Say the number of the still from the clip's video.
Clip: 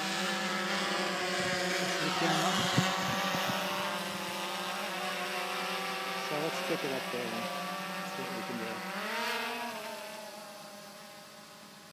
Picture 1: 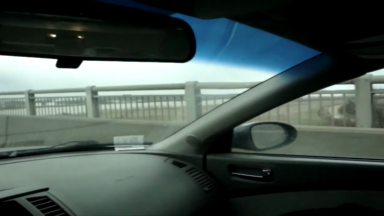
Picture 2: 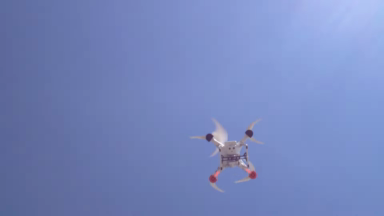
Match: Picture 2